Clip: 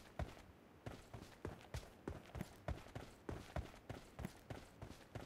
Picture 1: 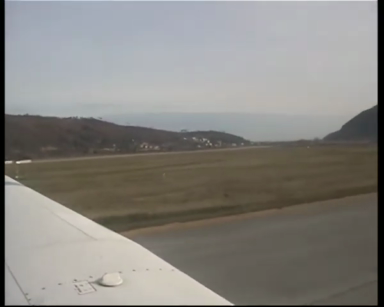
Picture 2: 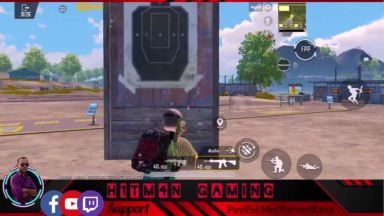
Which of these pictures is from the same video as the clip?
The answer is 2